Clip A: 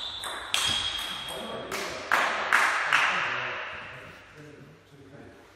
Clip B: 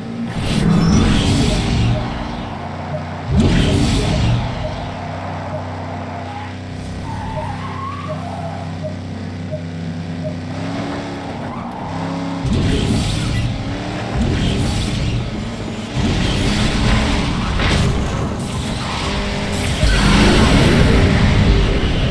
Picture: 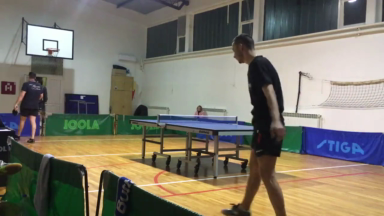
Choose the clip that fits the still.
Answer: A